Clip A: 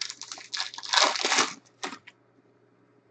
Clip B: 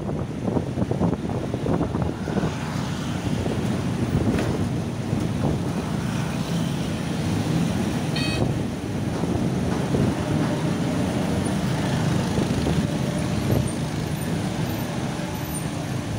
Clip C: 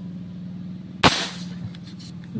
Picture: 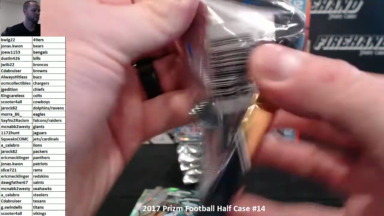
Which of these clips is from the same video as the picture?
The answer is A